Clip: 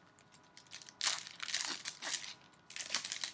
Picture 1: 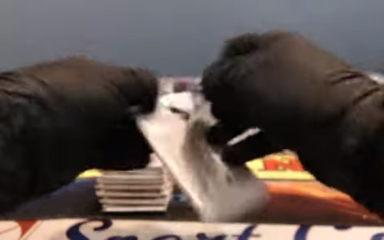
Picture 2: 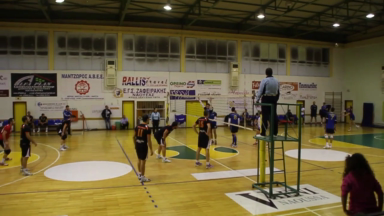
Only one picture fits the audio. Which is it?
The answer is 1